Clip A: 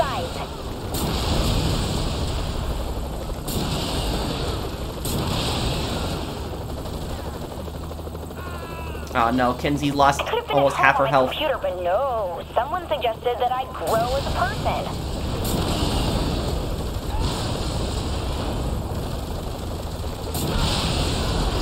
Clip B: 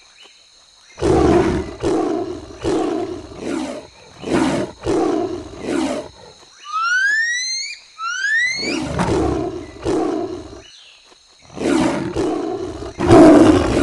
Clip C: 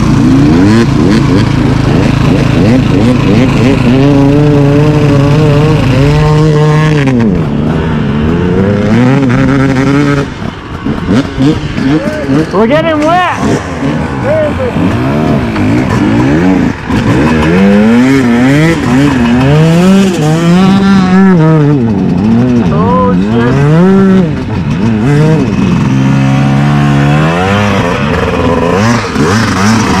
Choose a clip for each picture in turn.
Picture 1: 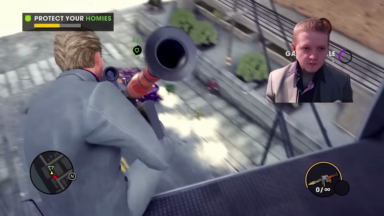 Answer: A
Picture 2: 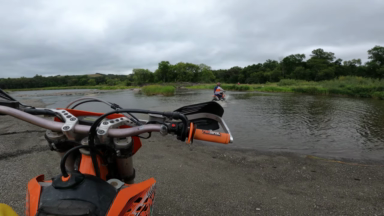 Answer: C